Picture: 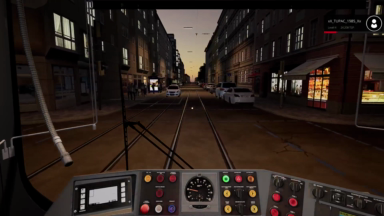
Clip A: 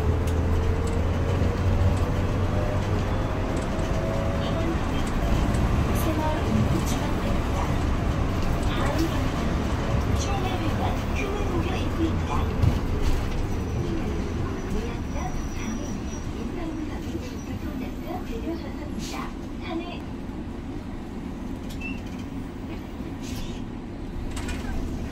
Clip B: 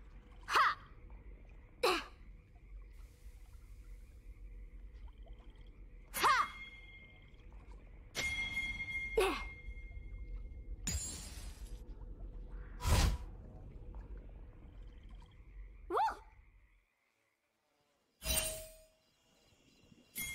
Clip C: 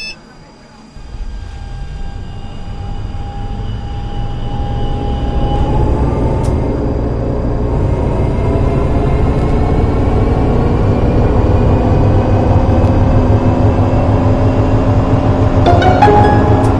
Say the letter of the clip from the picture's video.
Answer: C